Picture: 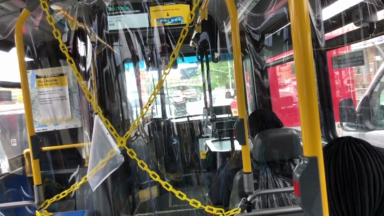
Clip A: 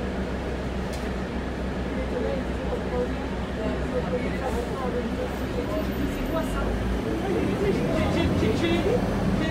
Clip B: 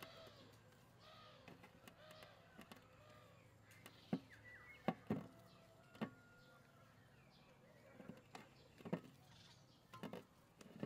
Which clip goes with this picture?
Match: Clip A